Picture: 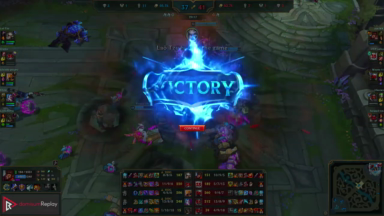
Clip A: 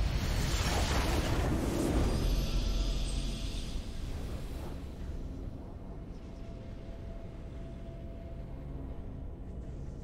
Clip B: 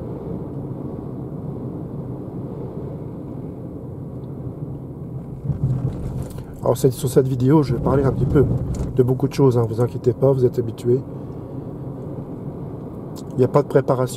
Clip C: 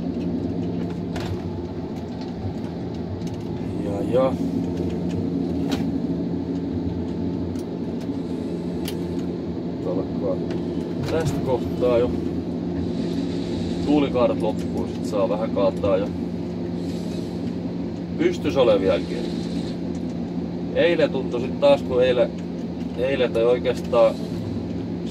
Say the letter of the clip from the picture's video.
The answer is A